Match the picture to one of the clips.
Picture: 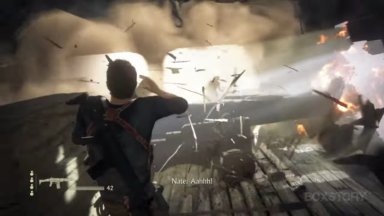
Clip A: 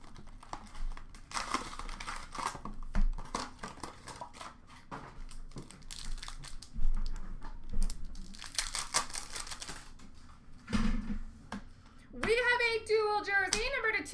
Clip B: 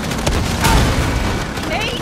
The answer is B